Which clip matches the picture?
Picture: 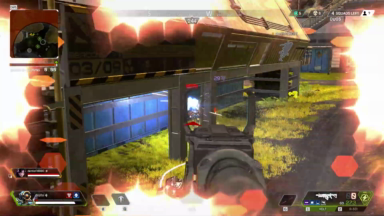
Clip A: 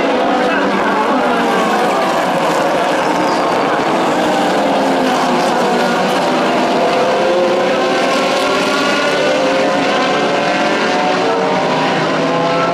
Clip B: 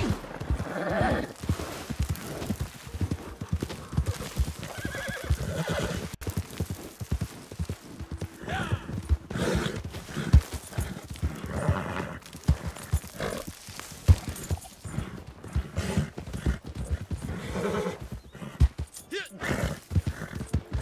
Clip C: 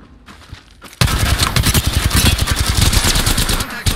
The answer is C